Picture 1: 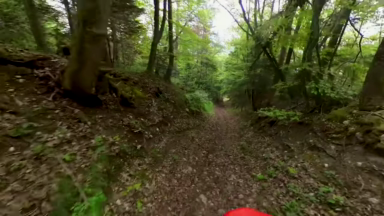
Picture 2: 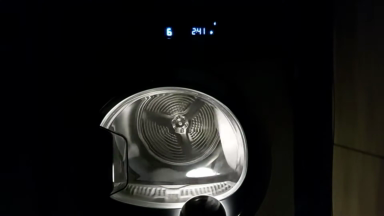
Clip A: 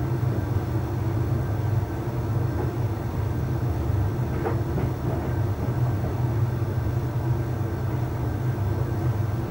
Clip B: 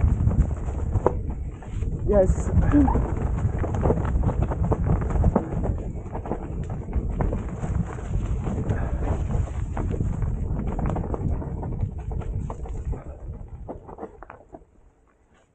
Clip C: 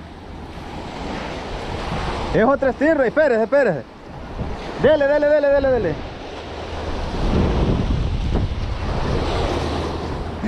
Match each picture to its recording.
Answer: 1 B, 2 A